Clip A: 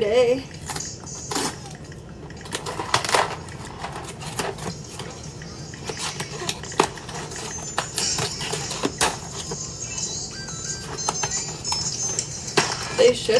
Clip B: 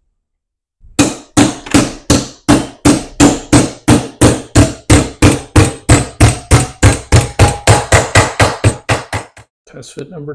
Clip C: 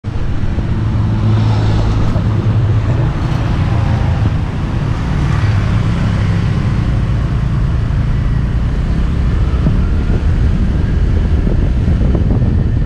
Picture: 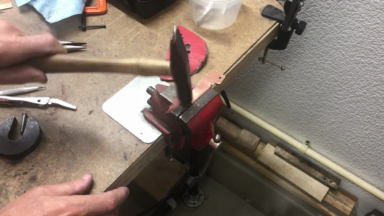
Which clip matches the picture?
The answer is B